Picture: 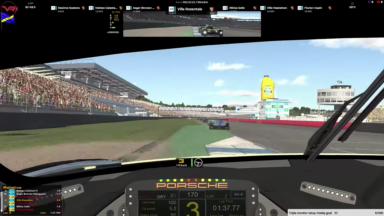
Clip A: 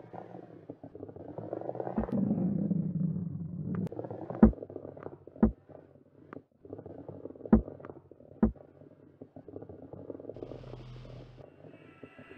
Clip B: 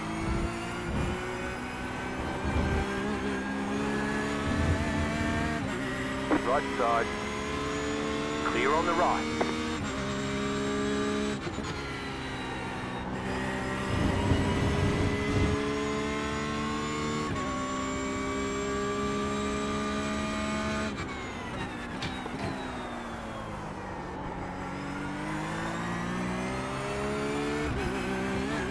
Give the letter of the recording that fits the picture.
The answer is B